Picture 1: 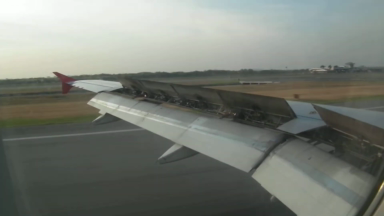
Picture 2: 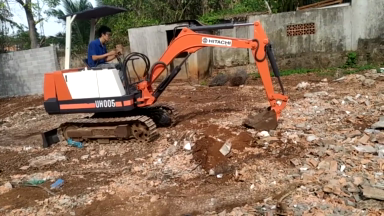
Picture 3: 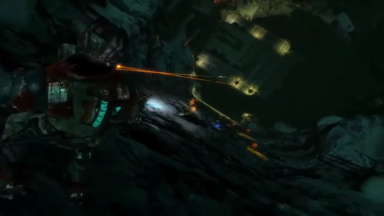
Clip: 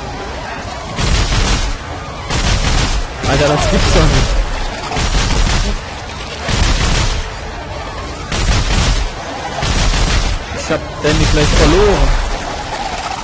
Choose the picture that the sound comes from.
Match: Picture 3